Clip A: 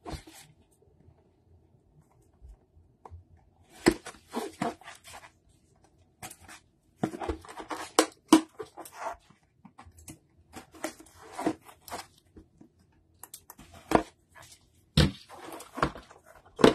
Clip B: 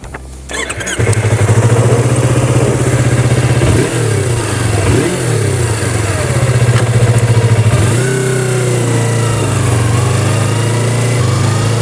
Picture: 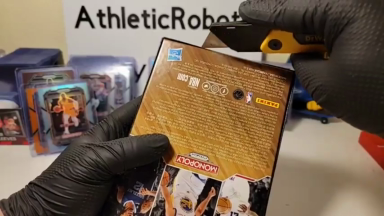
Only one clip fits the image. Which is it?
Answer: A